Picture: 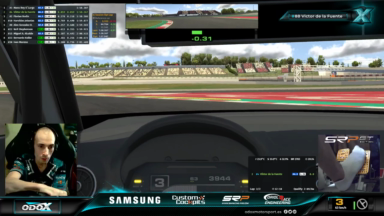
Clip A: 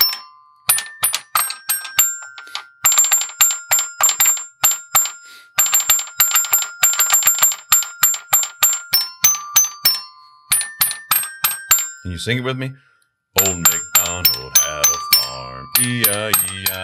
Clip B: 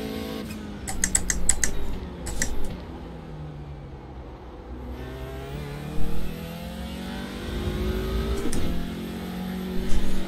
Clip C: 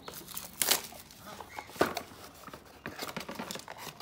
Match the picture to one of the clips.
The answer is B